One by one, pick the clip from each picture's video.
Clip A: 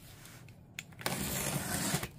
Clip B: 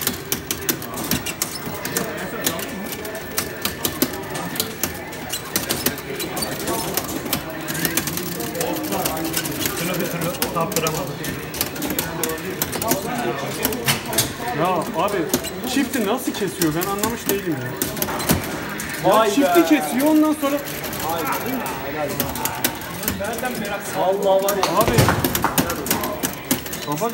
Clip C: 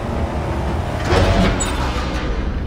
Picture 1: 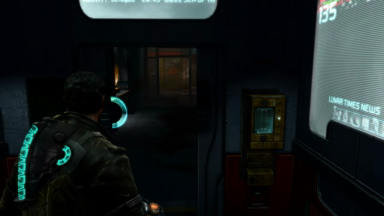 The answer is C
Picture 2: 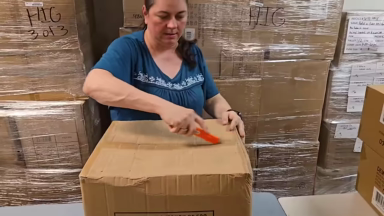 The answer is A